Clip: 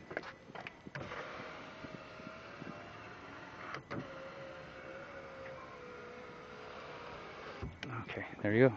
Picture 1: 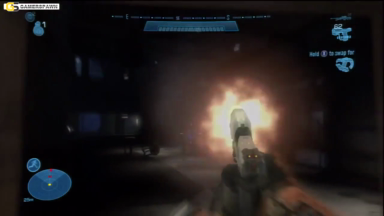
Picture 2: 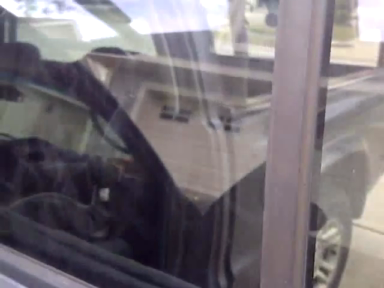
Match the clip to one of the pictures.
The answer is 2